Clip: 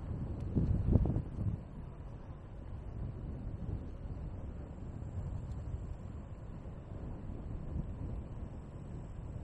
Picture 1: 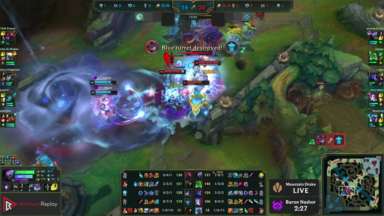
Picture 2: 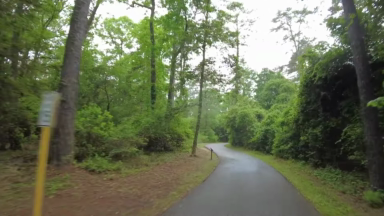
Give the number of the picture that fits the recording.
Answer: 2